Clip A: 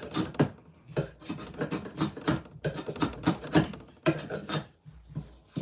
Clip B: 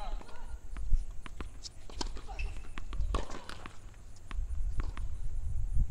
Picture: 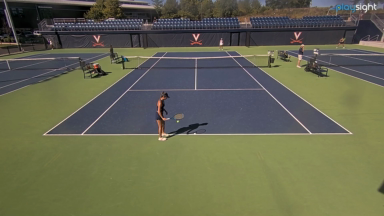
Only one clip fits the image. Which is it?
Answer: B